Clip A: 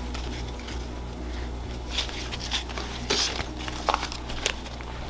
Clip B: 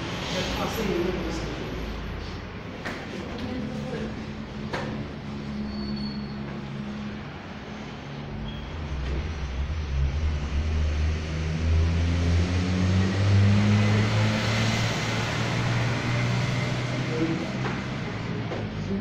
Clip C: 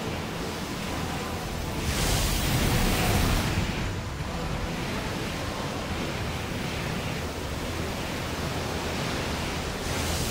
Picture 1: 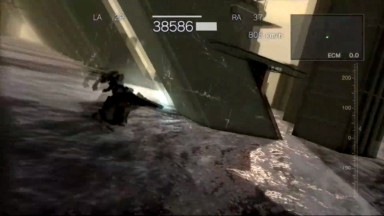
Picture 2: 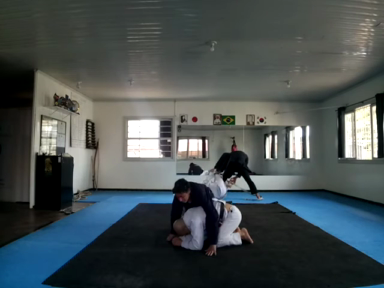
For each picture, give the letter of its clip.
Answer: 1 C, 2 B